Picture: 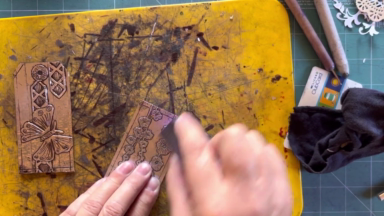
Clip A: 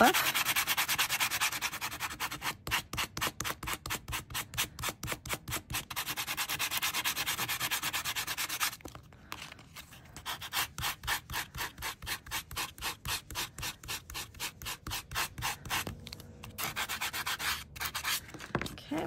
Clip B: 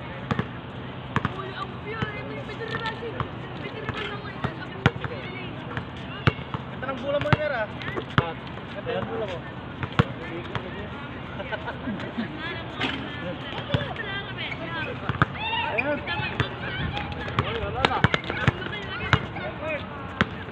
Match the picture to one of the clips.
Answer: A